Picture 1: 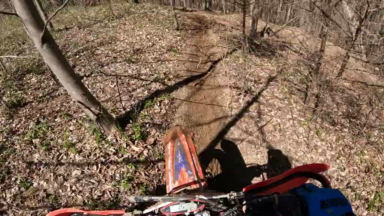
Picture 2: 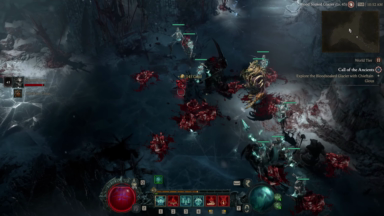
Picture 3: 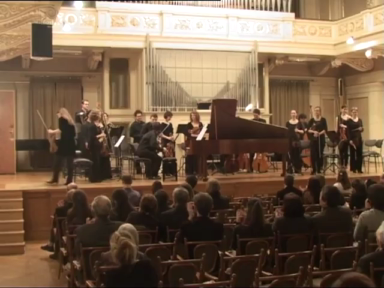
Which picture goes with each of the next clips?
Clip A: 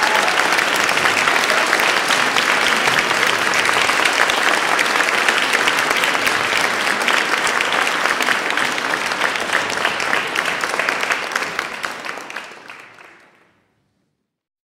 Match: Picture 3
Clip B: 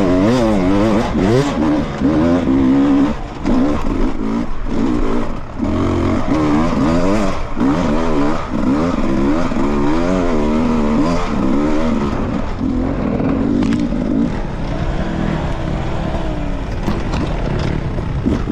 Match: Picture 1